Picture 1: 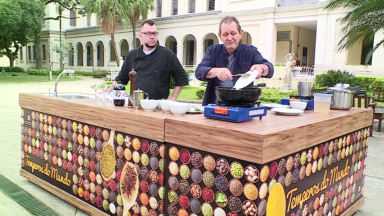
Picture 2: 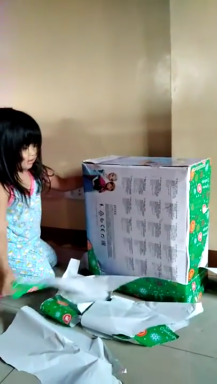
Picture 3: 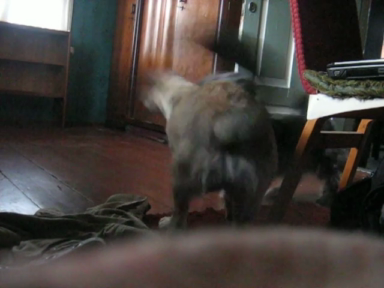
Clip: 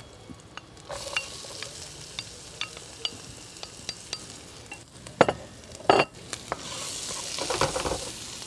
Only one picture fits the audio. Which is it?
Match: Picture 1